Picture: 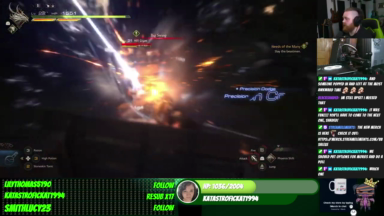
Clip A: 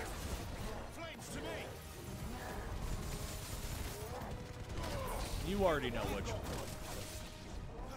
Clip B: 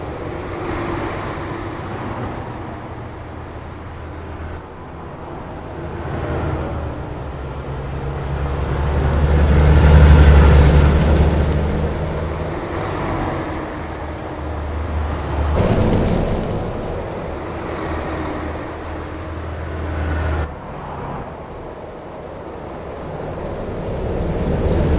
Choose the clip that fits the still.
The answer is A